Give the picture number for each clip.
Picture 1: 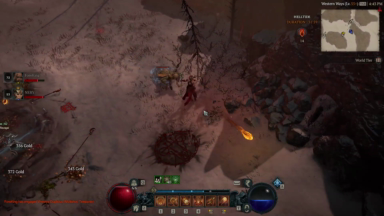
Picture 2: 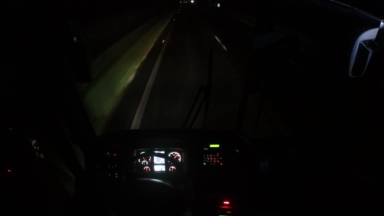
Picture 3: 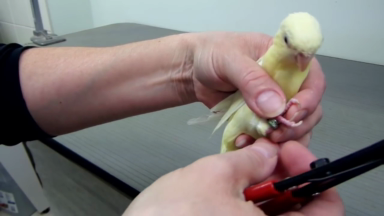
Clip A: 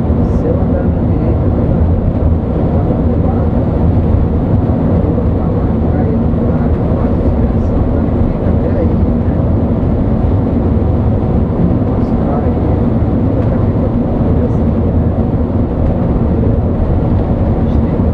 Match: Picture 2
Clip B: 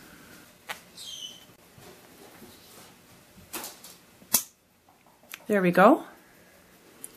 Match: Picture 3